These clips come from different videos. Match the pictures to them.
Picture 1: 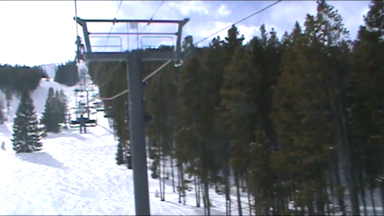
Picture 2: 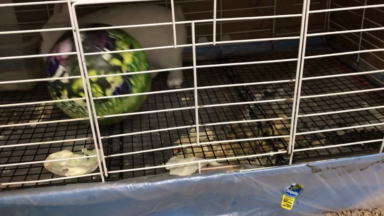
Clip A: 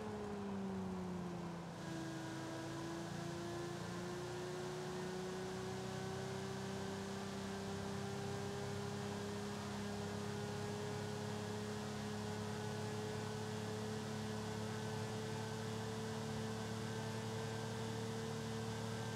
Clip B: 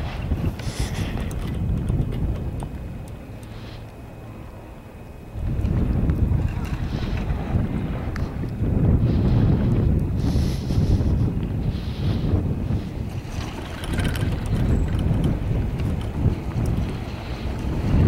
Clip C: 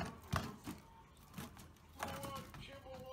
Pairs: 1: B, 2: C